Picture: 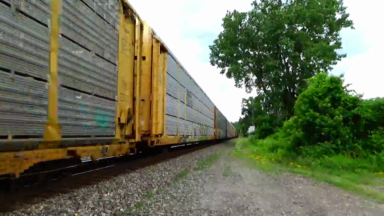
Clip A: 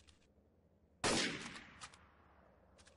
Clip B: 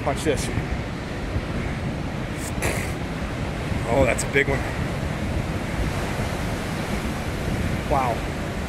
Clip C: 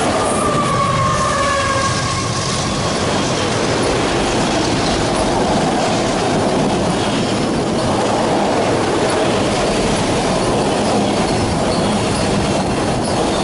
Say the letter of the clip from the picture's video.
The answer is C